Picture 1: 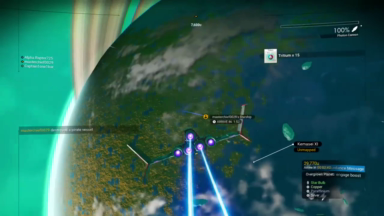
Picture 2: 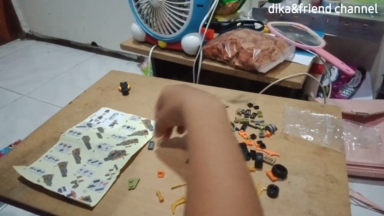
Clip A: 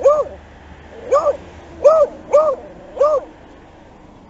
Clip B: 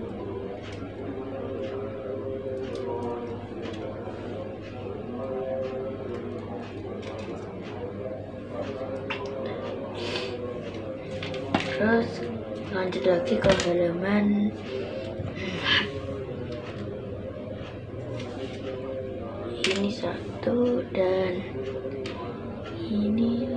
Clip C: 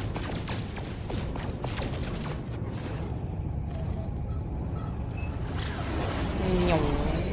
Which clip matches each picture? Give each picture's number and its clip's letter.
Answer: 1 C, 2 B